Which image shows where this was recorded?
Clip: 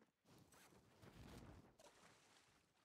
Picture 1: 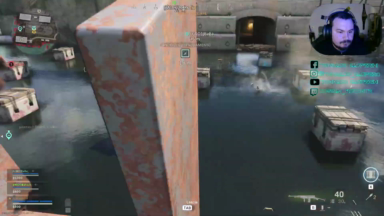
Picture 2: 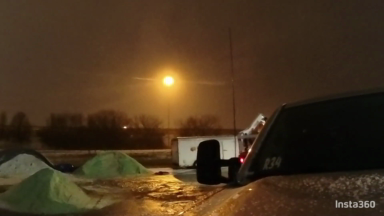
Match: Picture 1